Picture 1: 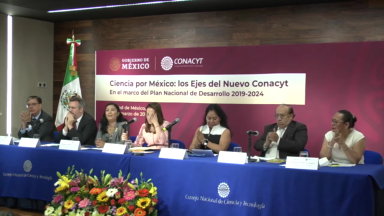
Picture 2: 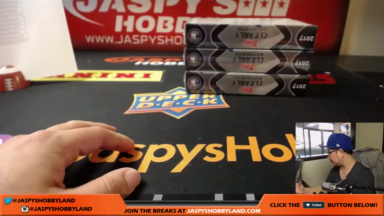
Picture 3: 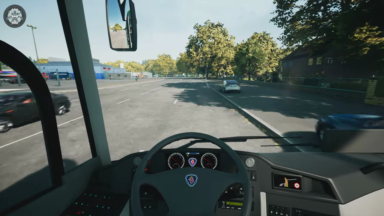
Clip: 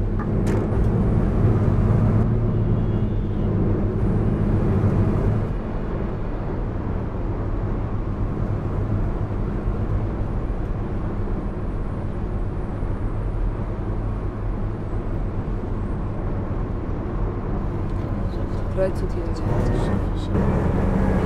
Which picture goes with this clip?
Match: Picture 3